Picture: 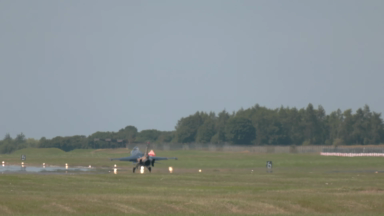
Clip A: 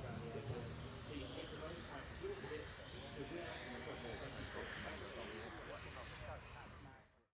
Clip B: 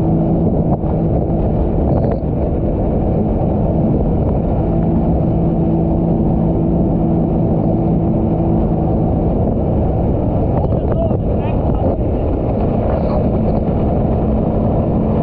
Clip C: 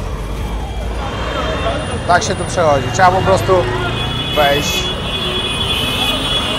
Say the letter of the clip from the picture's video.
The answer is A